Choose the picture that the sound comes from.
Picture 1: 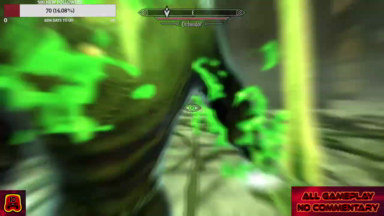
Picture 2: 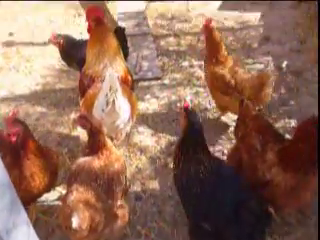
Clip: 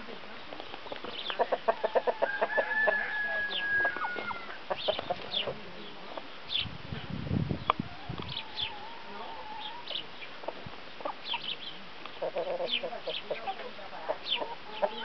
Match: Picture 2